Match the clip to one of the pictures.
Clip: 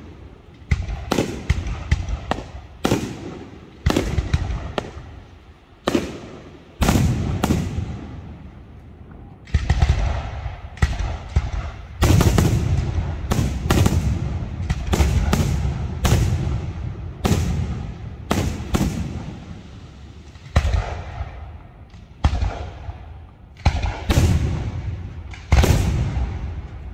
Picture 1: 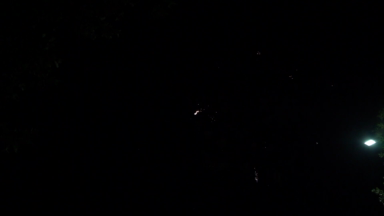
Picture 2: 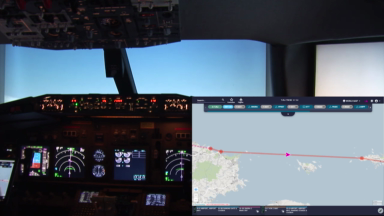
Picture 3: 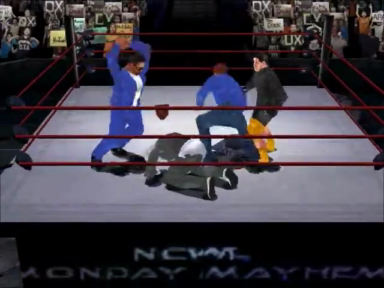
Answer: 1